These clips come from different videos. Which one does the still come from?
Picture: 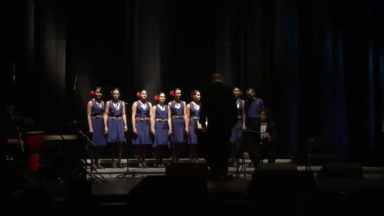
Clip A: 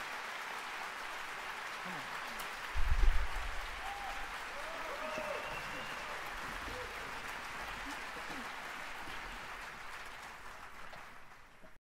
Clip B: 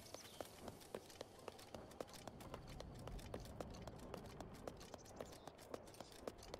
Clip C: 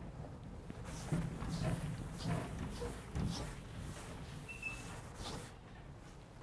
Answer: A